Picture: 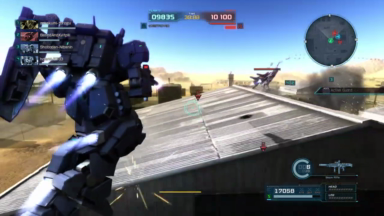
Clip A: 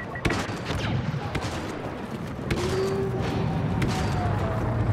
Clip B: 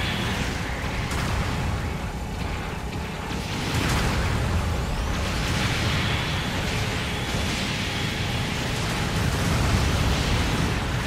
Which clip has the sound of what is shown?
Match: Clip B